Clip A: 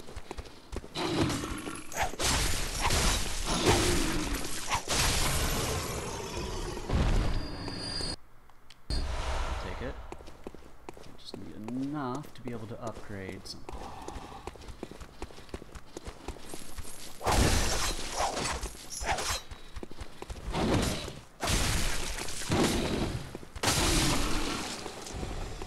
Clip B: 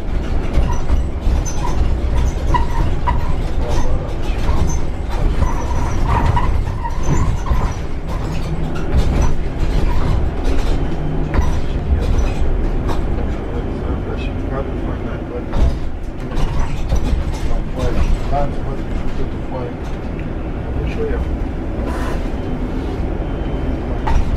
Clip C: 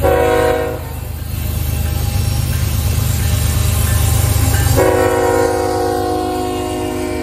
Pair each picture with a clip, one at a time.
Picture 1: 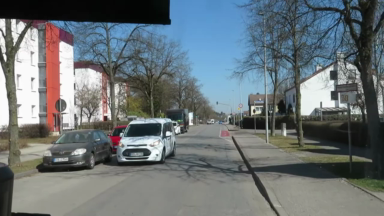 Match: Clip B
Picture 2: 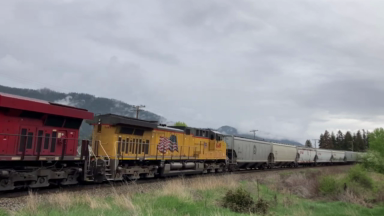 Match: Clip C